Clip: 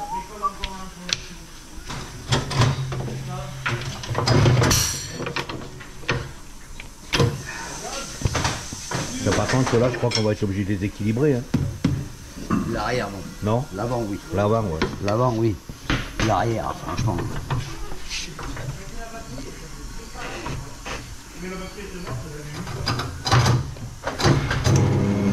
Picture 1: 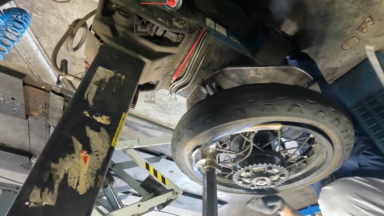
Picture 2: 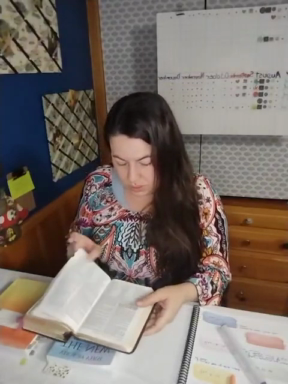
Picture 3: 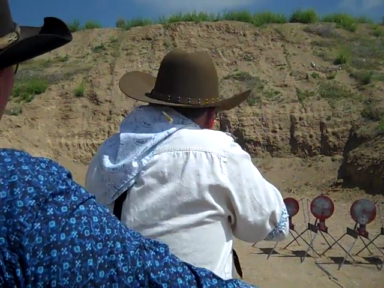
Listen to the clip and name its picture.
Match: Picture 1